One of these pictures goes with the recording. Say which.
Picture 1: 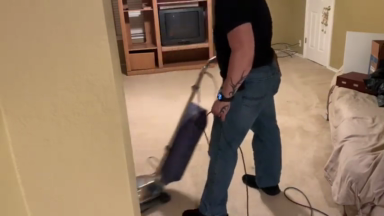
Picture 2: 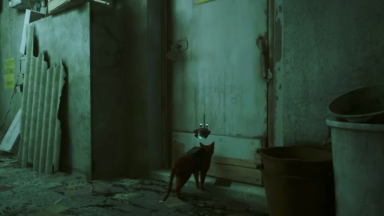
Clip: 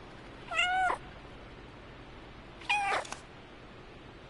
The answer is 2